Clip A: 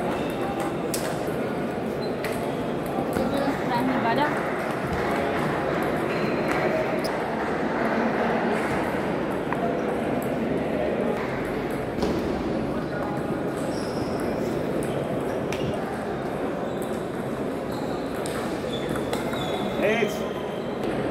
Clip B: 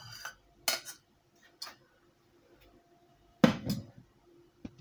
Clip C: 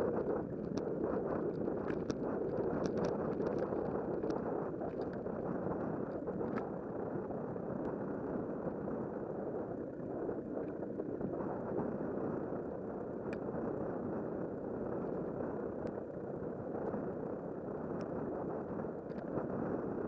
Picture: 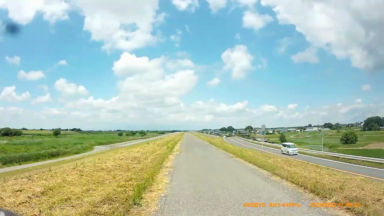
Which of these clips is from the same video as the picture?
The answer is C